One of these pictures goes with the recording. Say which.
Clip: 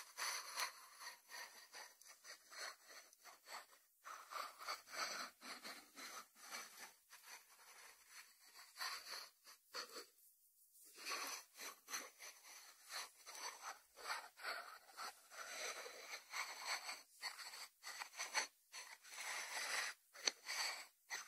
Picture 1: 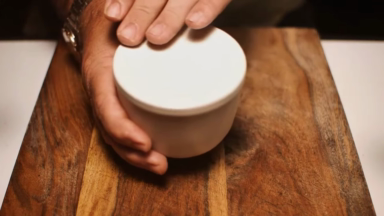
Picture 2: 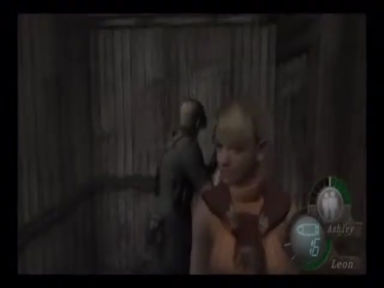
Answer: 1